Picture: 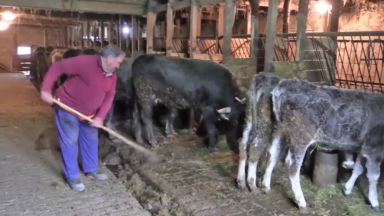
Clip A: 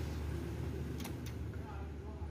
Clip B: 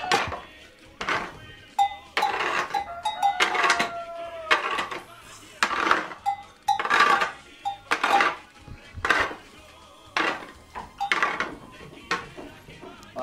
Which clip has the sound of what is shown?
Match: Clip B